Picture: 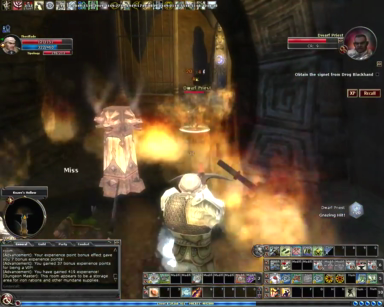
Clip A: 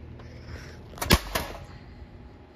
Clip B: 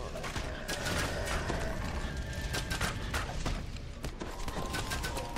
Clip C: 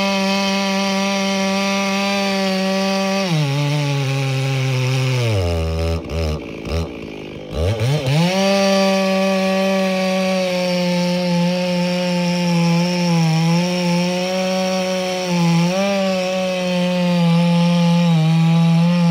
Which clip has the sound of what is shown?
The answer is B